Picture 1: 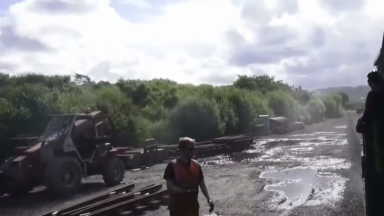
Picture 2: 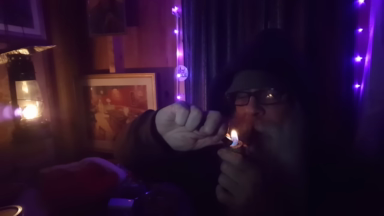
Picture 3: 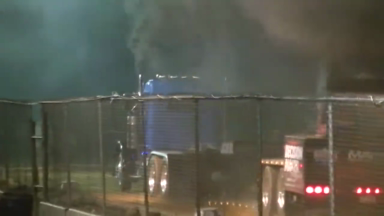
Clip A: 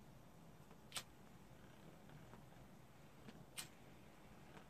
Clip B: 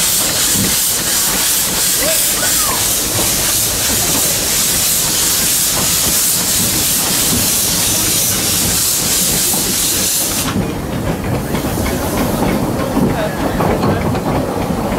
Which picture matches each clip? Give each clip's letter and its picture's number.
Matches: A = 2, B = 1